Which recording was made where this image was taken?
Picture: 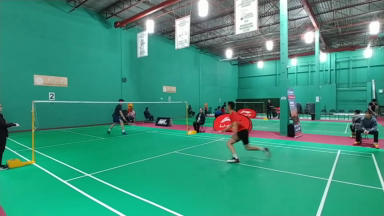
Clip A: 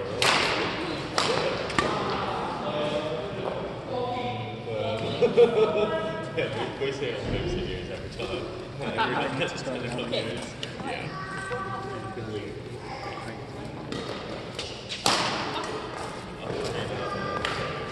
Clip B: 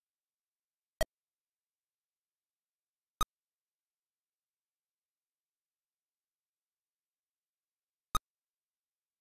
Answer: A